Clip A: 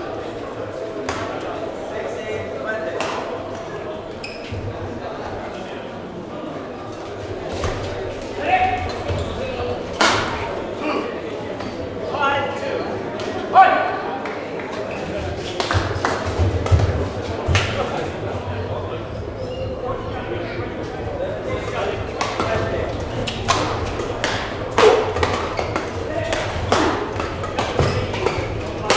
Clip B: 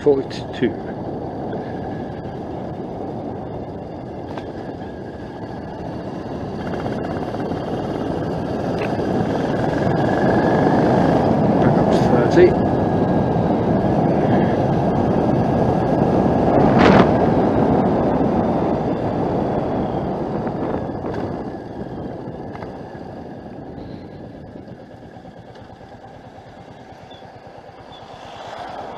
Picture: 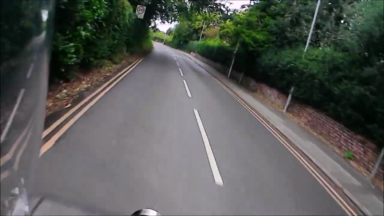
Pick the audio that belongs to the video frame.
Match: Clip B